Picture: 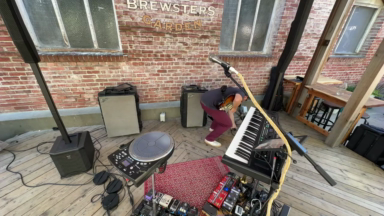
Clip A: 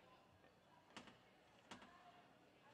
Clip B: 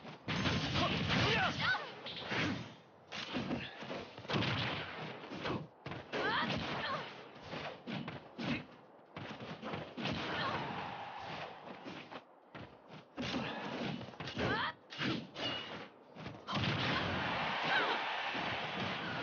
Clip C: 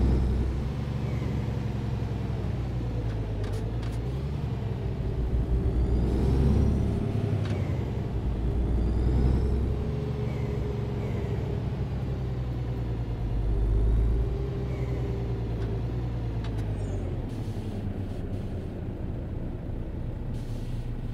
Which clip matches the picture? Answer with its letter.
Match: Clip A